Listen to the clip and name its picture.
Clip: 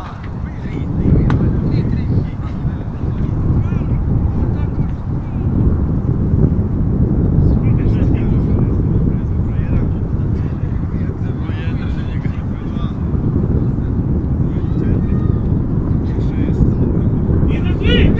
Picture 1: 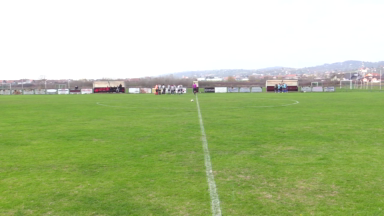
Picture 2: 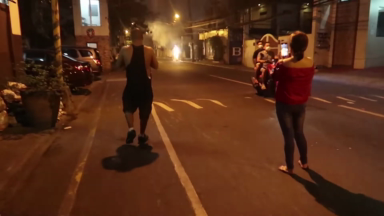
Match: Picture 1